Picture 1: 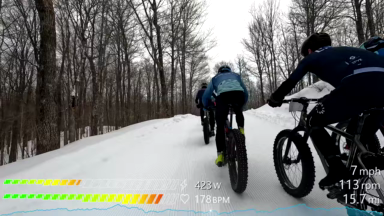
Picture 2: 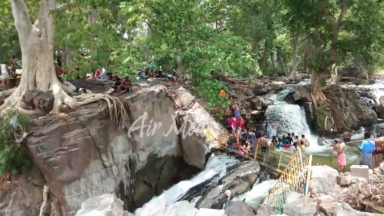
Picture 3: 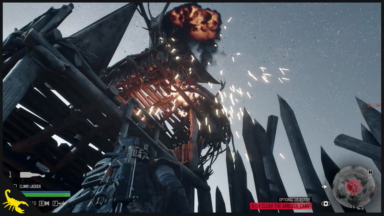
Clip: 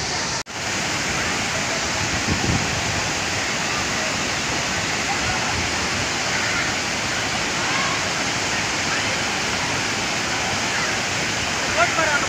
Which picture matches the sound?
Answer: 2